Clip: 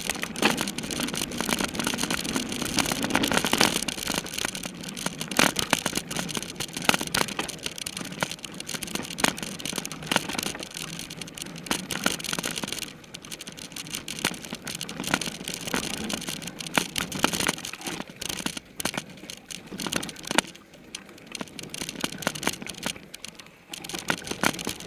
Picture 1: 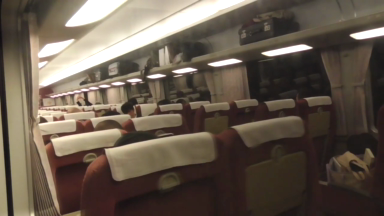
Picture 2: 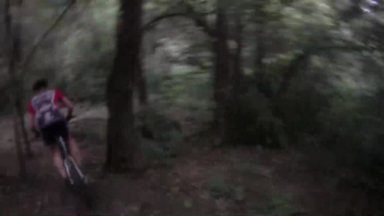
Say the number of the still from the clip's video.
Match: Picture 2